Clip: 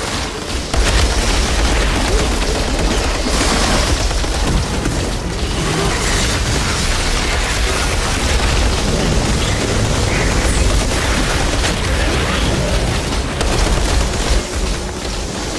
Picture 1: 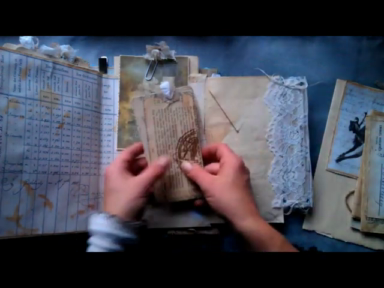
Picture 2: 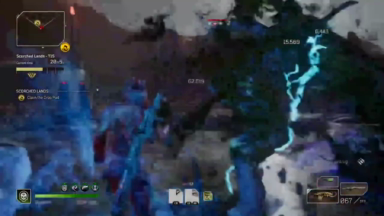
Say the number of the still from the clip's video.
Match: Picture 2